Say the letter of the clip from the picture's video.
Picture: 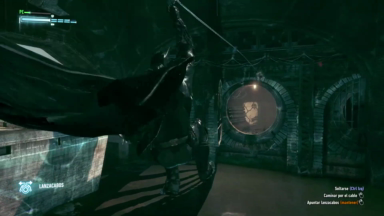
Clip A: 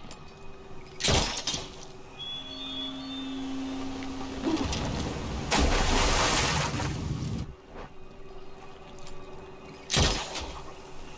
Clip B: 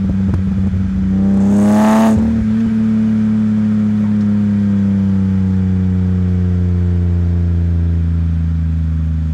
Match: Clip A